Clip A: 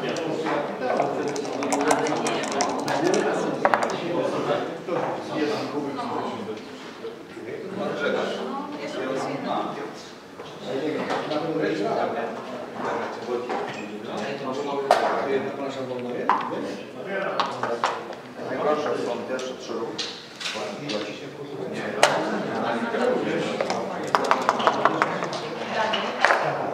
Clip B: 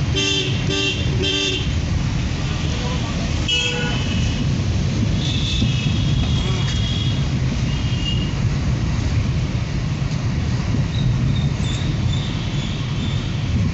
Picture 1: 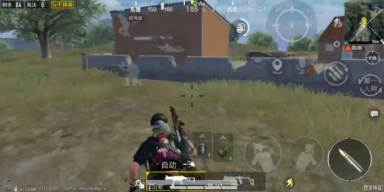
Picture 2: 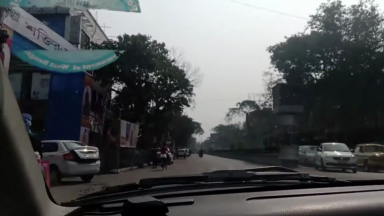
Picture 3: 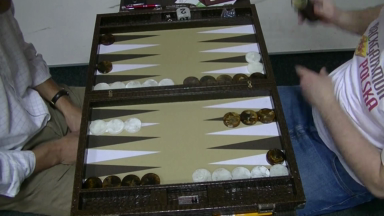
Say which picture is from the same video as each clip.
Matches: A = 3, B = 2